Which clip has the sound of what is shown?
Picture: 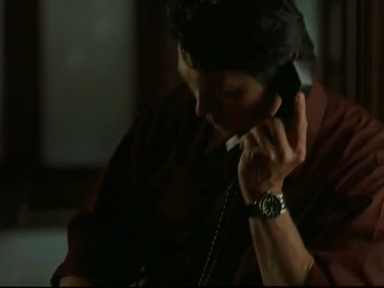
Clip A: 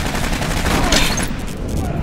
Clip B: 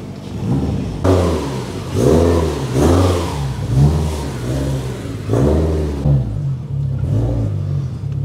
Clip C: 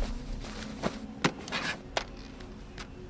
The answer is C